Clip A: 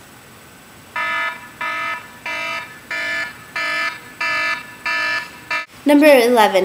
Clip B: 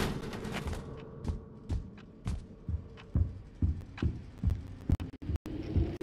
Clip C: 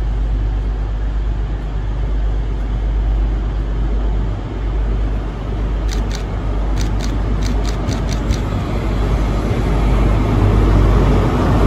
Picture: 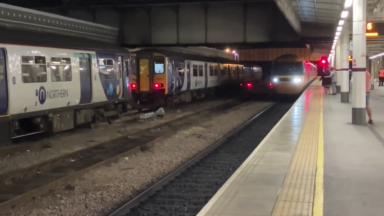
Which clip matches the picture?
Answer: C